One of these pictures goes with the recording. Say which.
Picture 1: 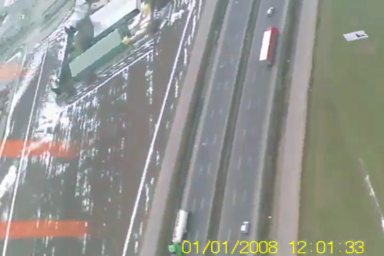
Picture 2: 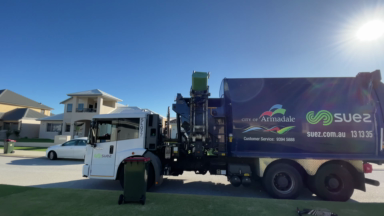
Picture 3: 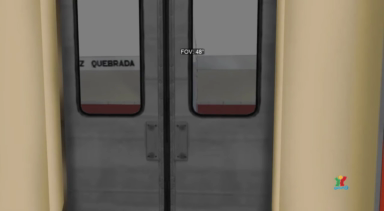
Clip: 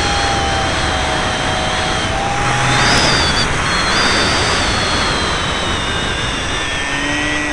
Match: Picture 1